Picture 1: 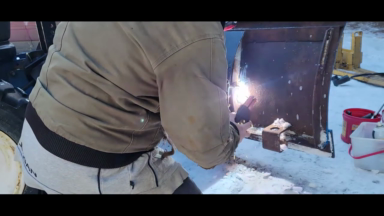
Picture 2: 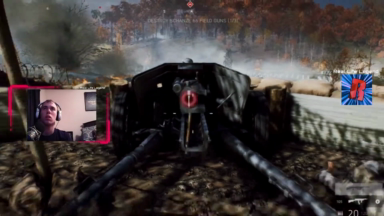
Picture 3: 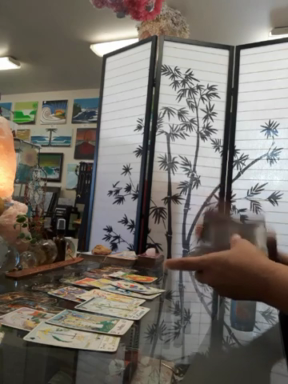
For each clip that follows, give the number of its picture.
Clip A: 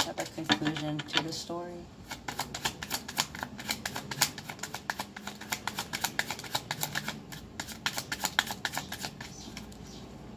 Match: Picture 3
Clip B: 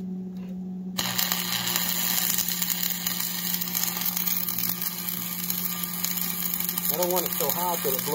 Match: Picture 1